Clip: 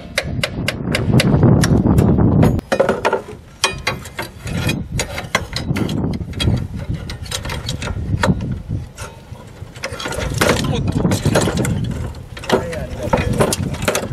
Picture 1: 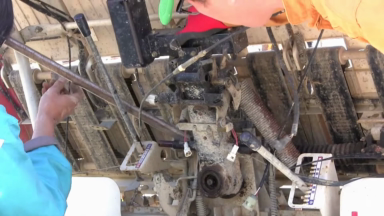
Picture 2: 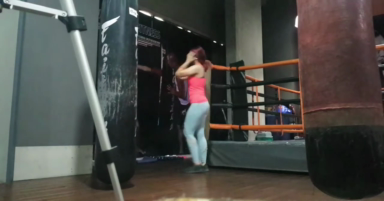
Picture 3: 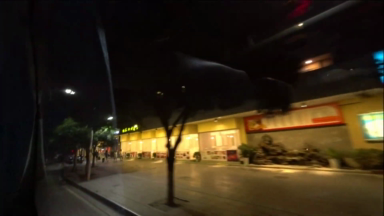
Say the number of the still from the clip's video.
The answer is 1